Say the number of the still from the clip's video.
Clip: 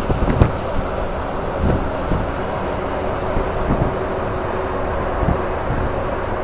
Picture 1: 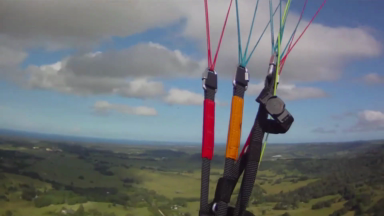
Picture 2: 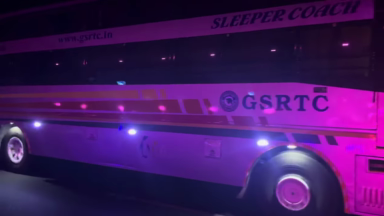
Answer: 2